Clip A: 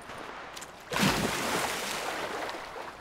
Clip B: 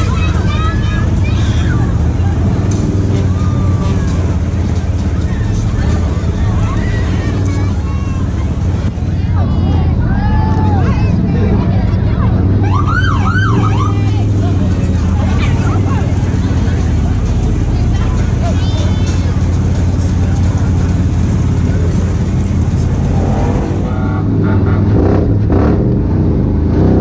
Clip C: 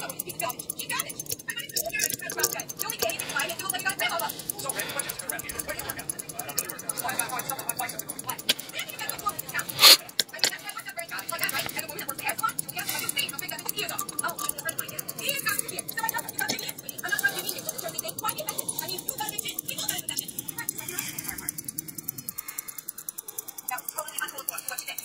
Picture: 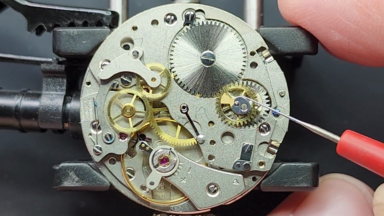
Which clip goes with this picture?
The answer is C